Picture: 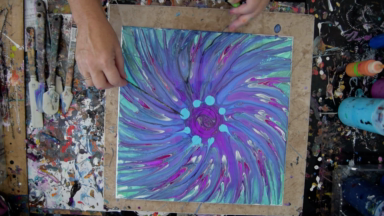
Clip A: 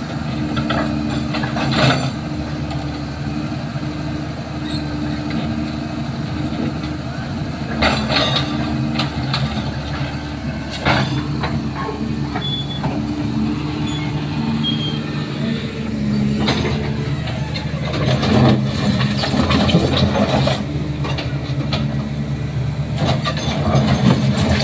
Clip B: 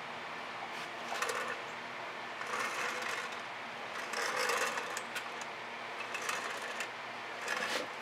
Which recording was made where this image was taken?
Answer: B